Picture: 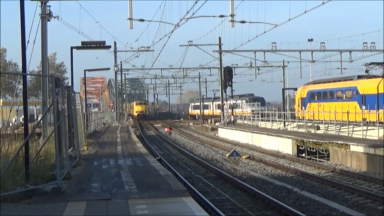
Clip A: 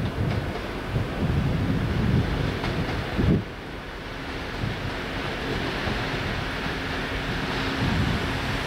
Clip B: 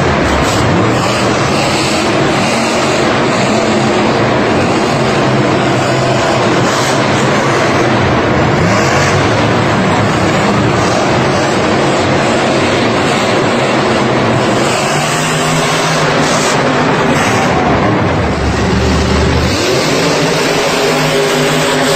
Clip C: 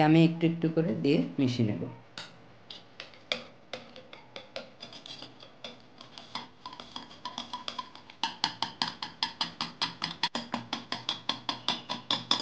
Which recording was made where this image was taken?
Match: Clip A